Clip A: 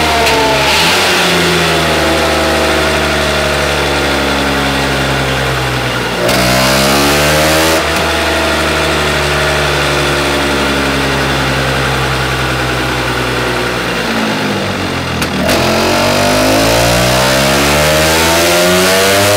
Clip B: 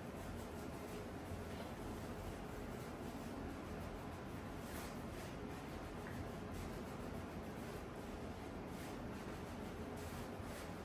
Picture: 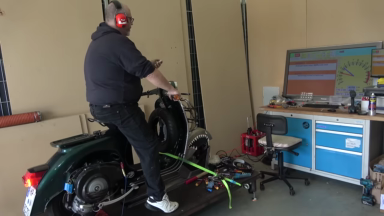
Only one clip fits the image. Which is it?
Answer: A